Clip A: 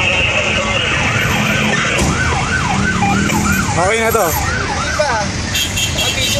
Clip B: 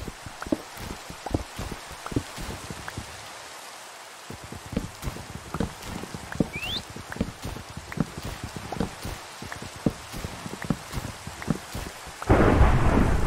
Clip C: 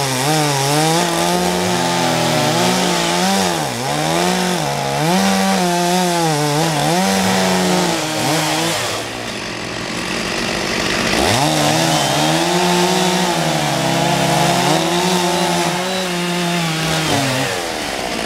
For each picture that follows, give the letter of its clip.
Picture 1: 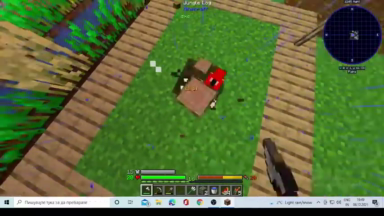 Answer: B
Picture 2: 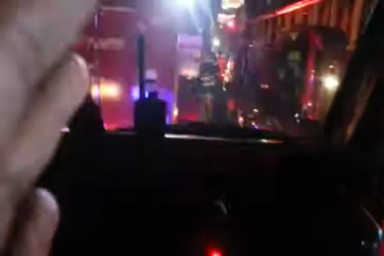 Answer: A